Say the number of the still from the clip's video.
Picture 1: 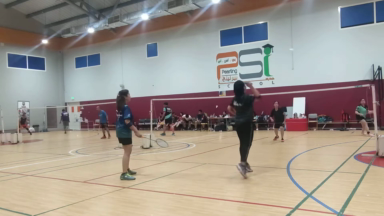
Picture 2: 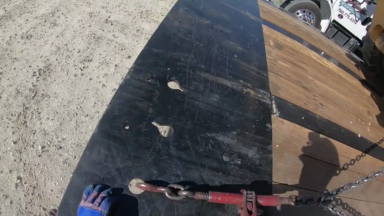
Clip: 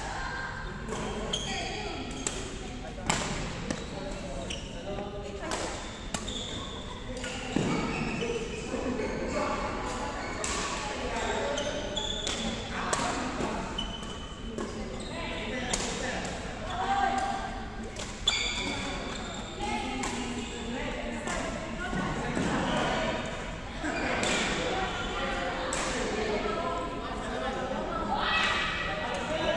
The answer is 1